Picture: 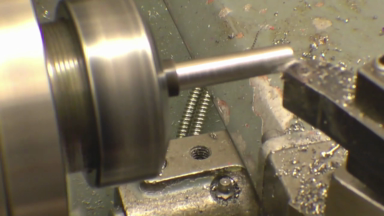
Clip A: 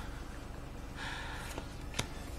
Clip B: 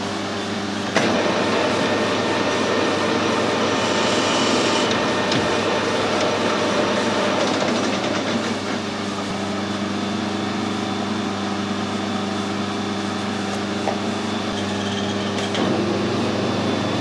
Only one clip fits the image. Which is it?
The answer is B